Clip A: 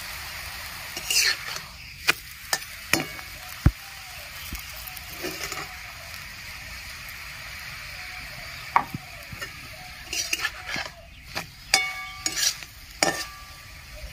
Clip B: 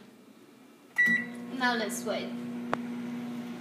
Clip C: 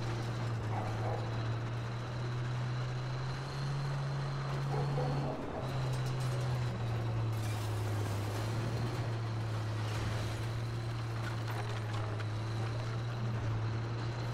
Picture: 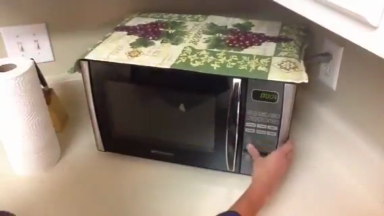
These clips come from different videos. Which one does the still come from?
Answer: B